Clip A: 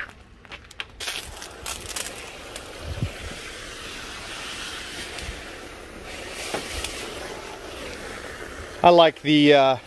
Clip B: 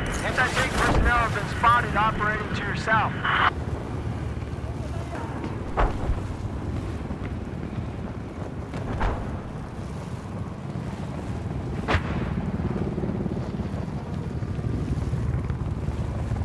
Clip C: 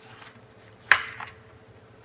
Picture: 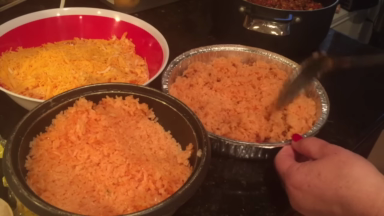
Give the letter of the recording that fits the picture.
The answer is C